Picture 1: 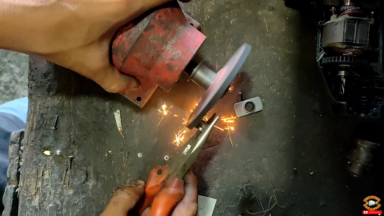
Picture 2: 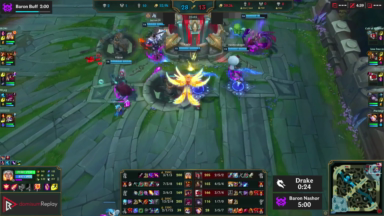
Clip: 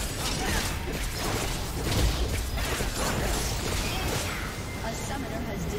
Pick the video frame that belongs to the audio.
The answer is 2